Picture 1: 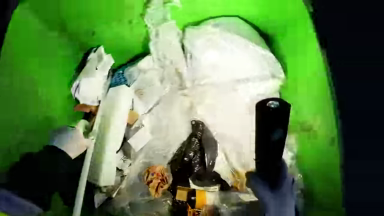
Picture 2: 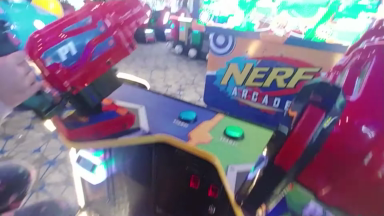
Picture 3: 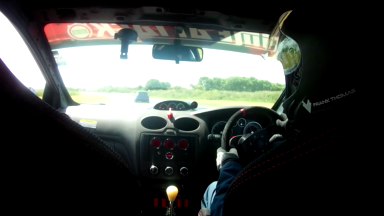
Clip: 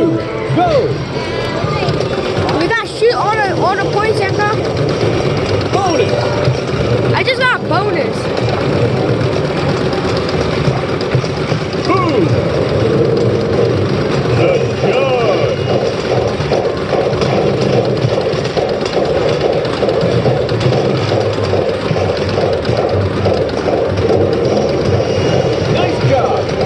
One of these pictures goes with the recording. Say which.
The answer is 2